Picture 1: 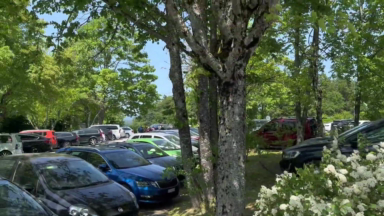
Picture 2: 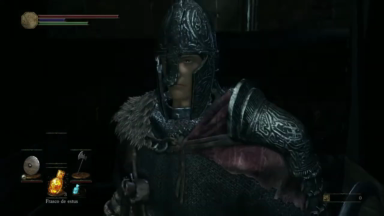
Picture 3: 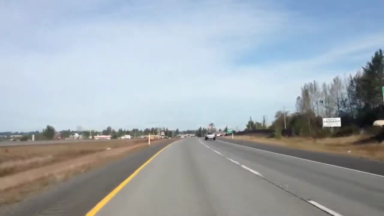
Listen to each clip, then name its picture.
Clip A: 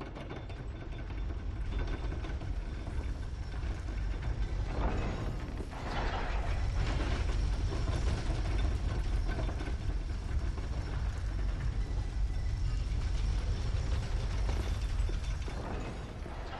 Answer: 2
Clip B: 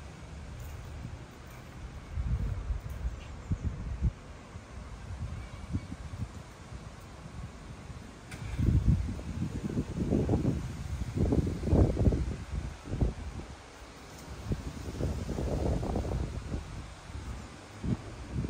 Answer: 1